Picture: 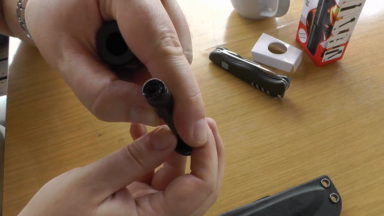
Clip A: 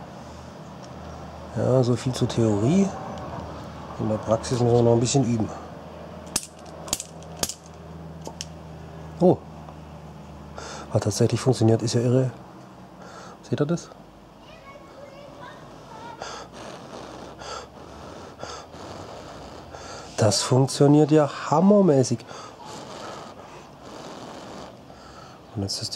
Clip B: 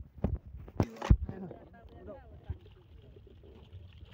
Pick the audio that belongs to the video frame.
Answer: A